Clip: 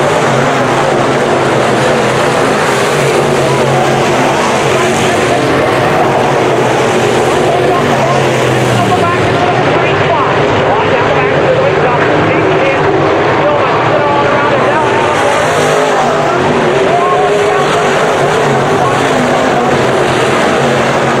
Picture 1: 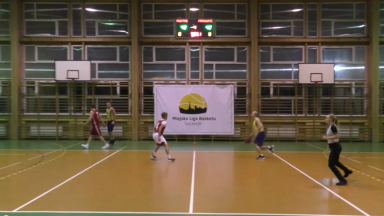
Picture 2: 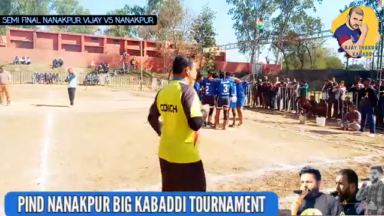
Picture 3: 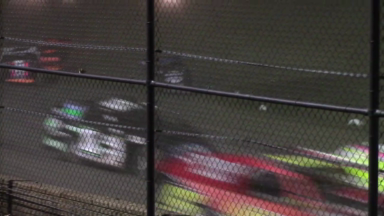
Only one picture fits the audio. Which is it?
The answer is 3